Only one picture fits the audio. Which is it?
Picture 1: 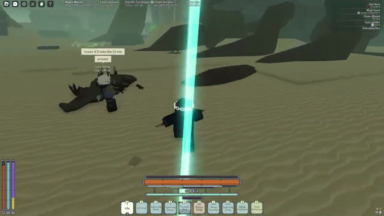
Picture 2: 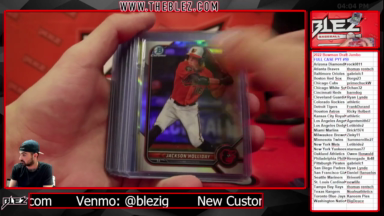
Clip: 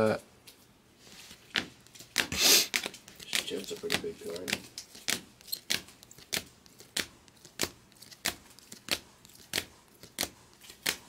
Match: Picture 2